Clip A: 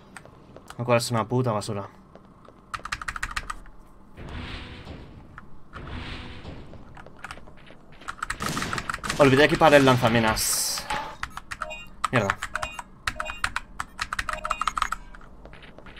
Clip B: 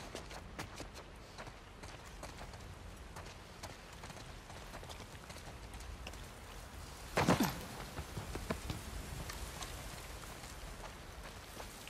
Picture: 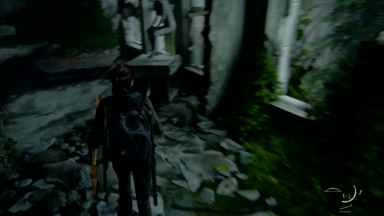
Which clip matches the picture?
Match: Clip B